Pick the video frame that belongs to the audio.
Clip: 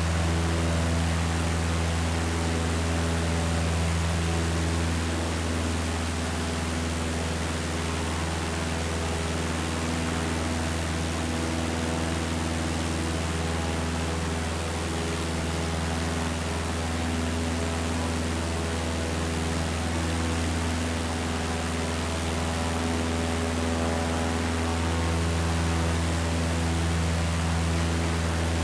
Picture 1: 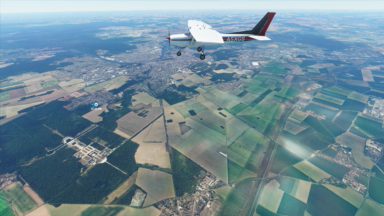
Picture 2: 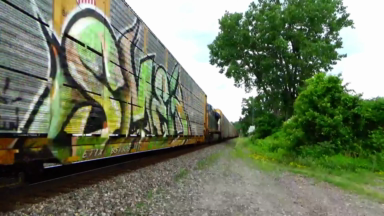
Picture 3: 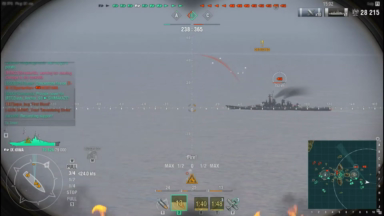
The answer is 1